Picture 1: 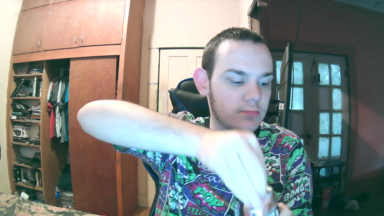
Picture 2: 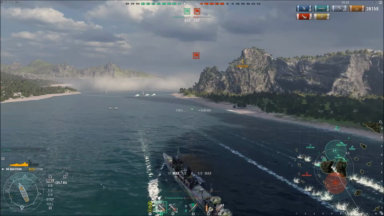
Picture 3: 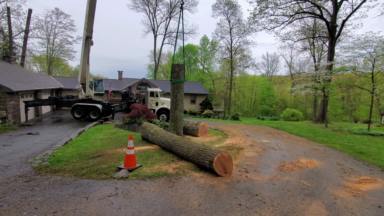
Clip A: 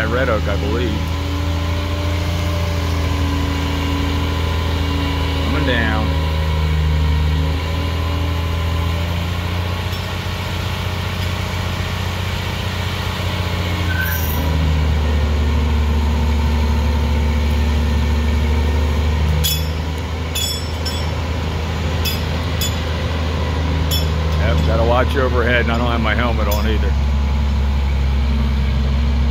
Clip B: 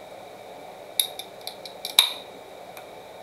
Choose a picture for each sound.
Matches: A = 3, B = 1